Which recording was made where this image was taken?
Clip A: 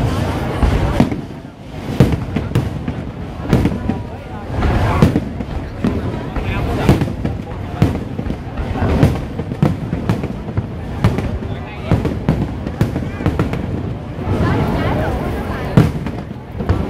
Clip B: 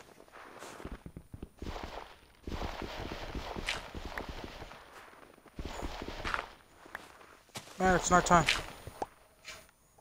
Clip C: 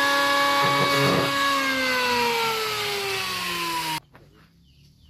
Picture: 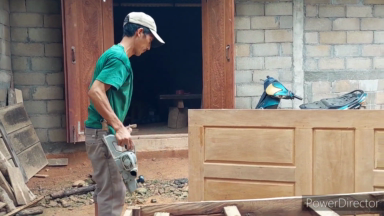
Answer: C